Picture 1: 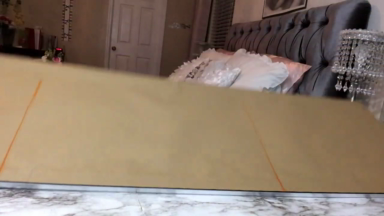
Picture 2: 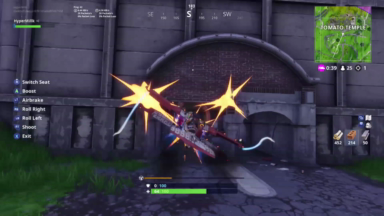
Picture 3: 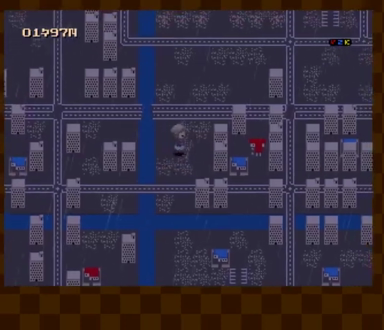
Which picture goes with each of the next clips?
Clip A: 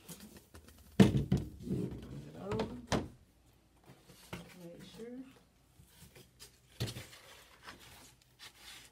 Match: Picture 1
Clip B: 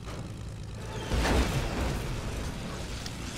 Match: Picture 2